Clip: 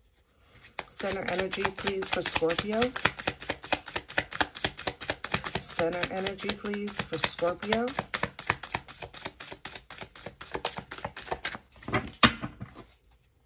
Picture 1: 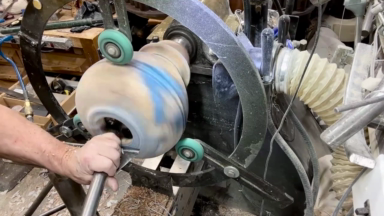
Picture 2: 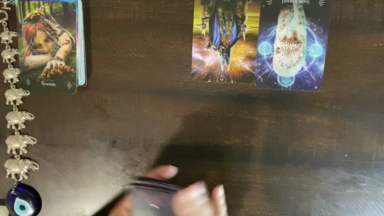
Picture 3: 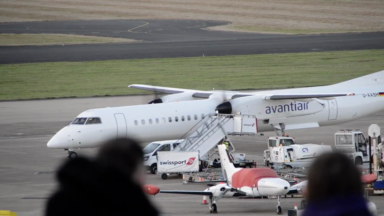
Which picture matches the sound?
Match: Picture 2